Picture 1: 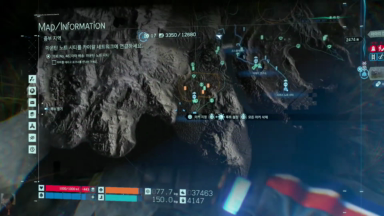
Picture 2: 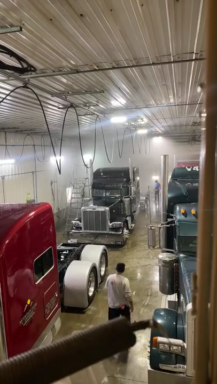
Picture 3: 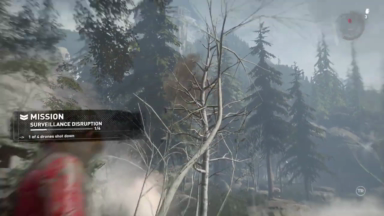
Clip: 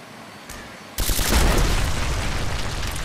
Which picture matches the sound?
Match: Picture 3